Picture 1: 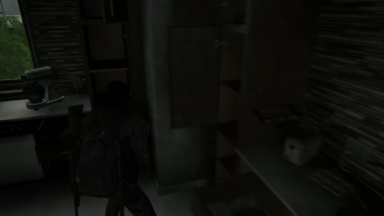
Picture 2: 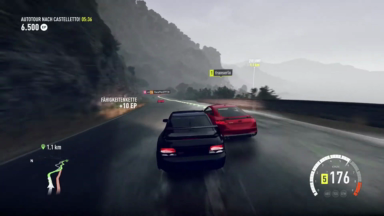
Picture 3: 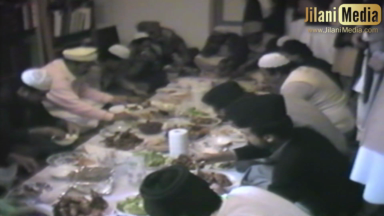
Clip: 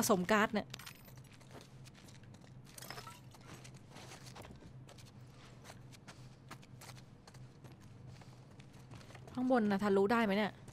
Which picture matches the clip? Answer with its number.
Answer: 1